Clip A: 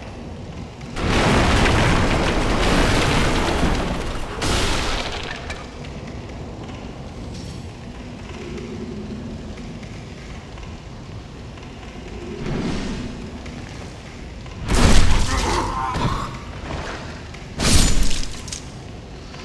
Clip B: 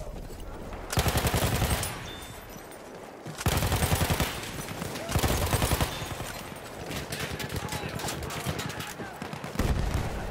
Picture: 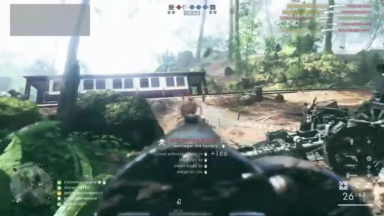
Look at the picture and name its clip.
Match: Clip B